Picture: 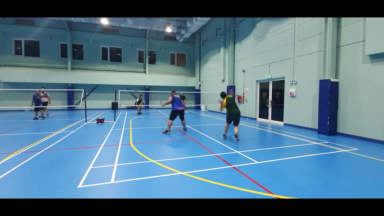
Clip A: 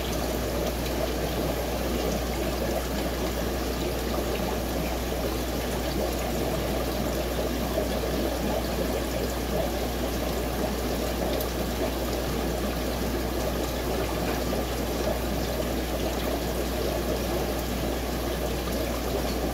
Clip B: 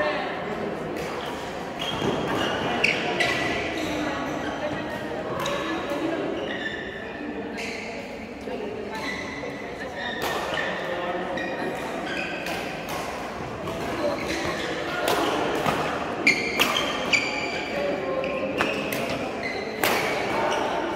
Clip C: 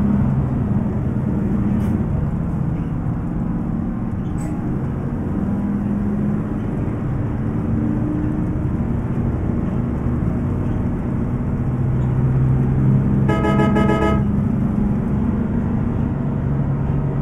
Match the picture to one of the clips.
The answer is B